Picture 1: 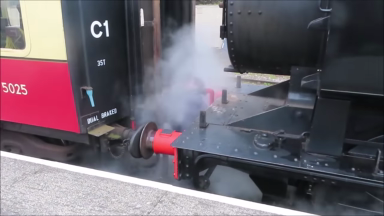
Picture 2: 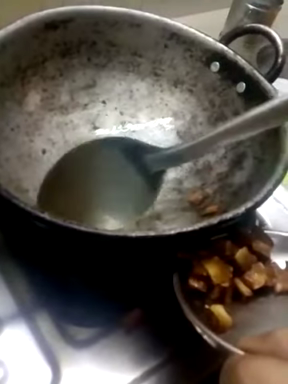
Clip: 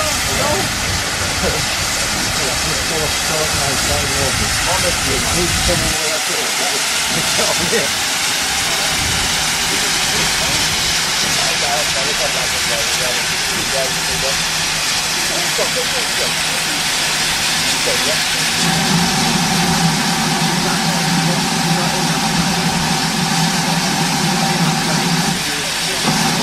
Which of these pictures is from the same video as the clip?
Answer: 1